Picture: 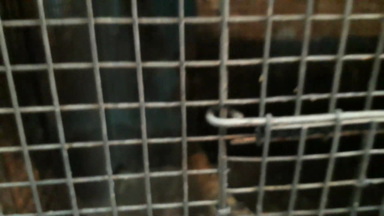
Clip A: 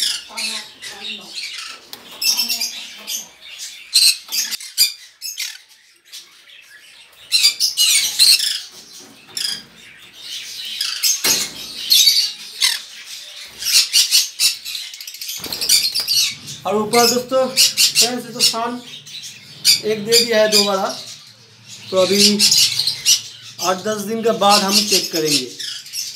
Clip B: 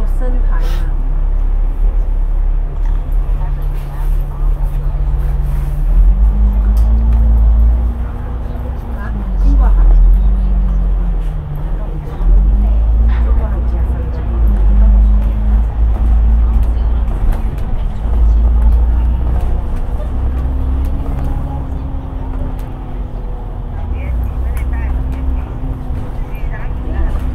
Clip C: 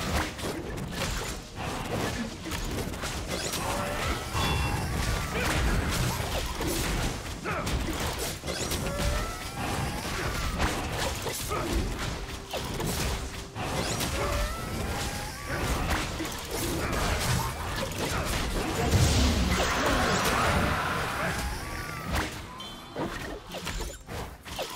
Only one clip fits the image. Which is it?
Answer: A